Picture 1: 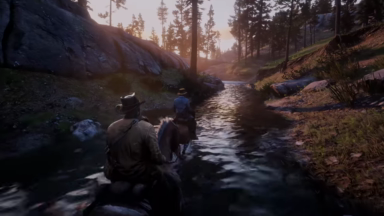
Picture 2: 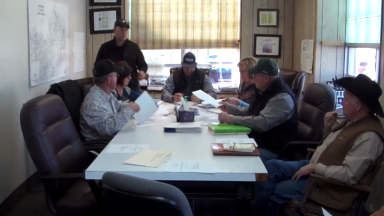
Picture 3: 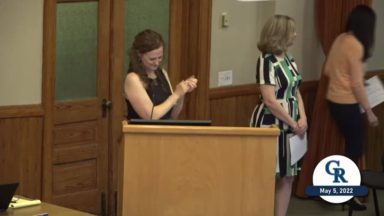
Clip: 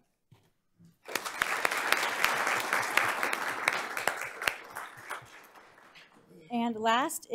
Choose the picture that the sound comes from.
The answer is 3